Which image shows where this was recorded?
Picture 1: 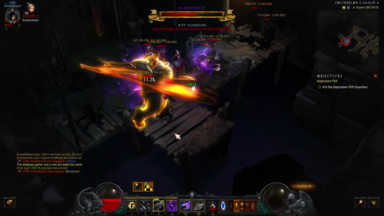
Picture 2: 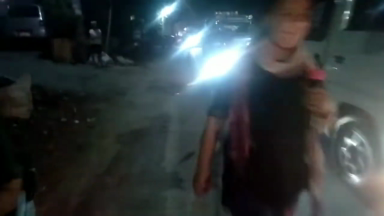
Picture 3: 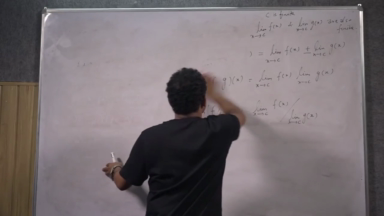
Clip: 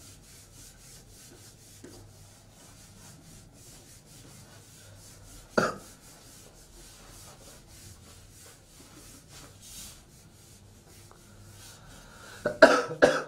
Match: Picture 3